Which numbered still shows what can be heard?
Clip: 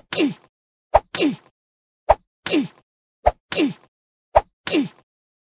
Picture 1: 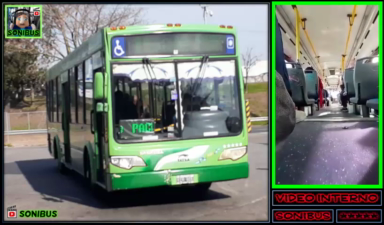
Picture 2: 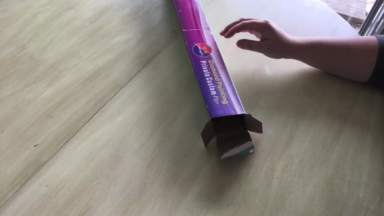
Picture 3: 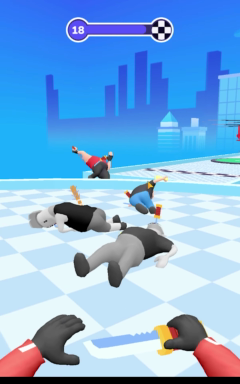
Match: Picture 3